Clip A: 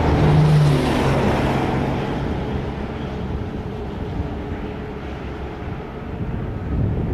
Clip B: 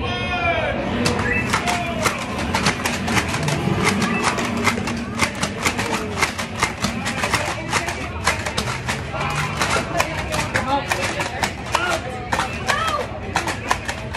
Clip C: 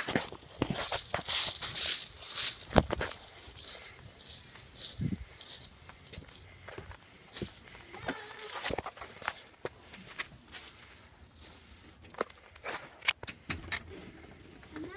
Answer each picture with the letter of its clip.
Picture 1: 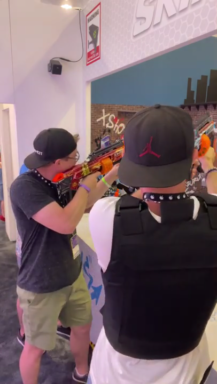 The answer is B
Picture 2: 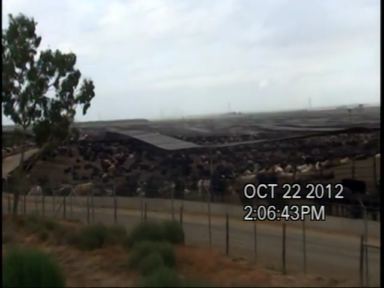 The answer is A